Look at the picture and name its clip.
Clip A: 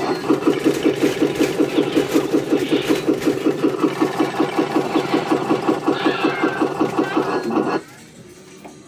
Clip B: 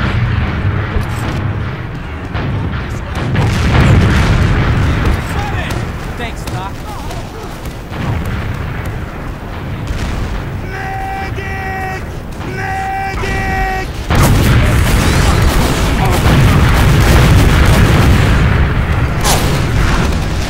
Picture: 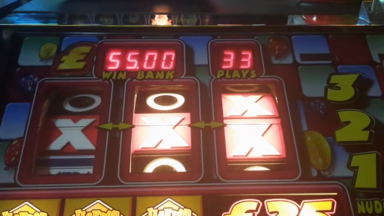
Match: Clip A